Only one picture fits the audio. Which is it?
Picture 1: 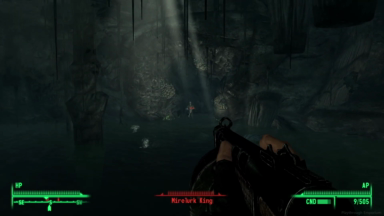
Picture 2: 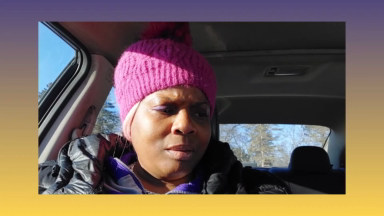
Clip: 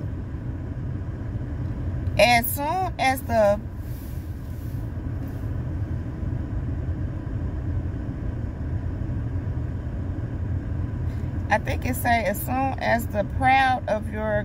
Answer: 2